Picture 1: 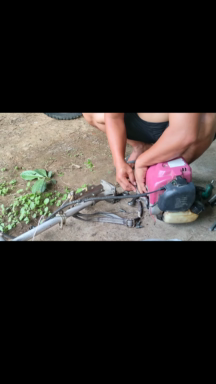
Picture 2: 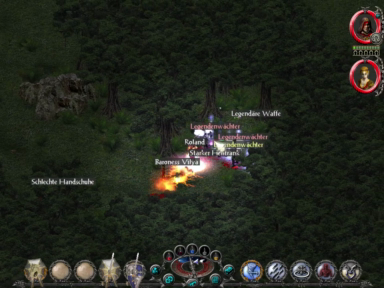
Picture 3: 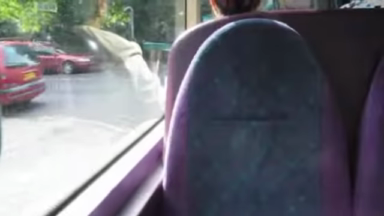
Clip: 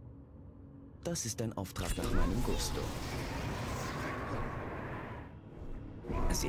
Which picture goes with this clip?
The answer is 2